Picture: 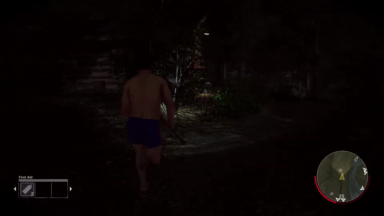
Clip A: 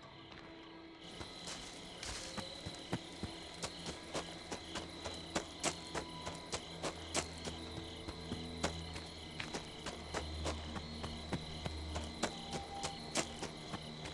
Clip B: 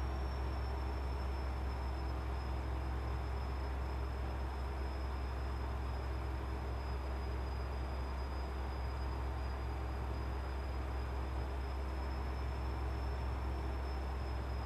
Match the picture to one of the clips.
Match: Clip A